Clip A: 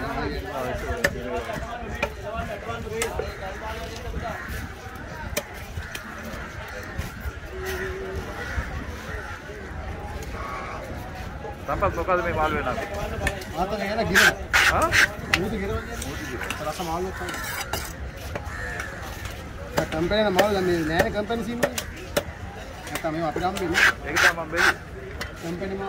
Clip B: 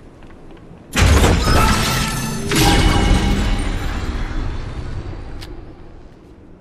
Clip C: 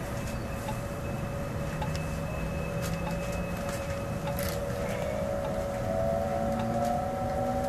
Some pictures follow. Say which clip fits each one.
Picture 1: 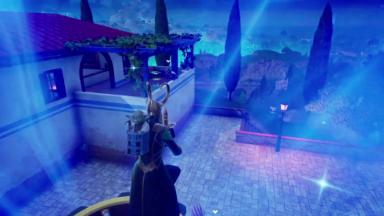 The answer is B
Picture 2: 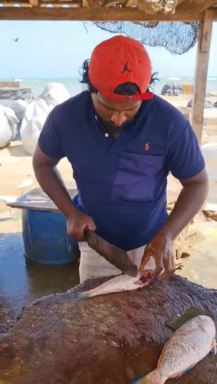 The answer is A